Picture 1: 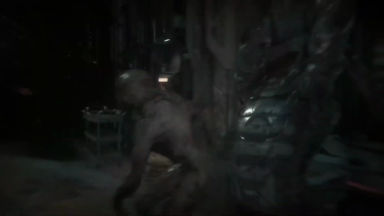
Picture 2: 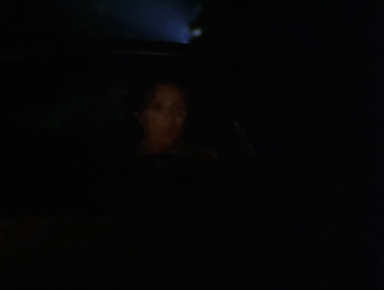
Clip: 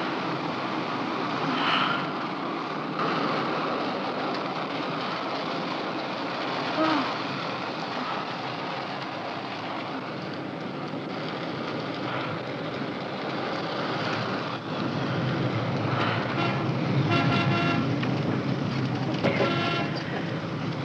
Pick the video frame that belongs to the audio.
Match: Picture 2